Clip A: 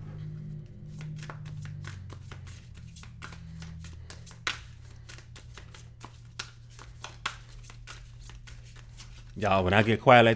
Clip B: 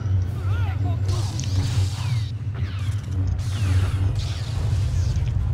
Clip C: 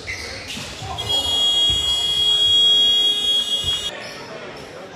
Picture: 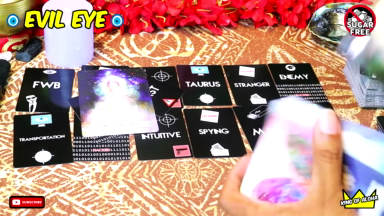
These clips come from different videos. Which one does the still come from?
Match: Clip A